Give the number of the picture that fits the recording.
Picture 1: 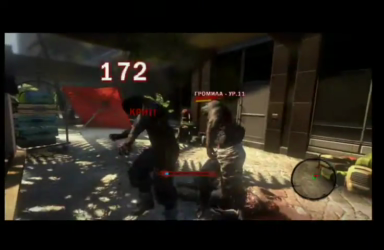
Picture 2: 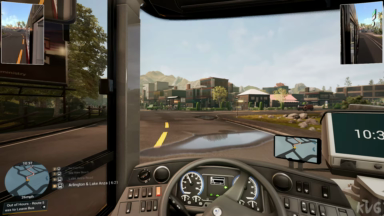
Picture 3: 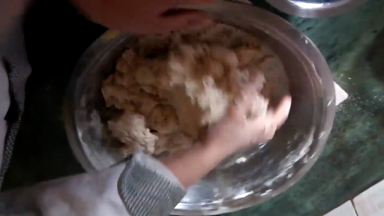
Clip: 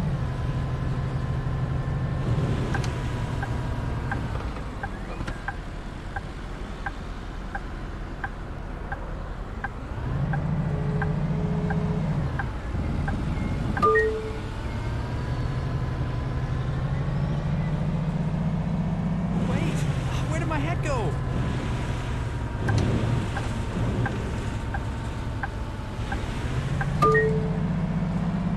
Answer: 2